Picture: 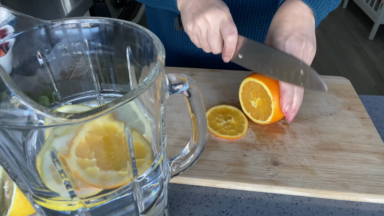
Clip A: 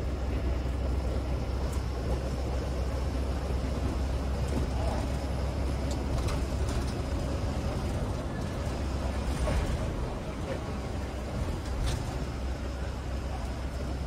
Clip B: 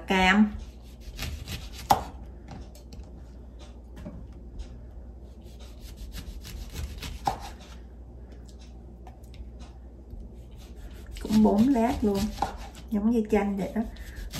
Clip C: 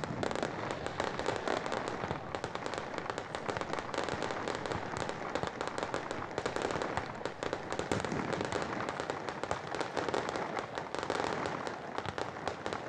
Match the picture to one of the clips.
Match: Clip B